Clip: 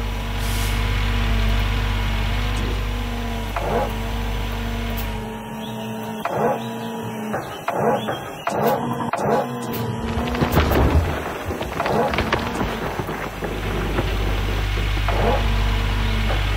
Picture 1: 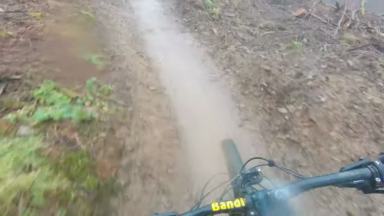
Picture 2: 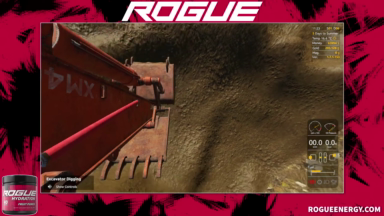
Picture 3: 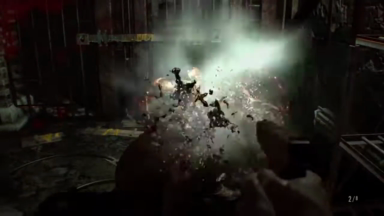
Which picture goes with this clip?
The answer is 2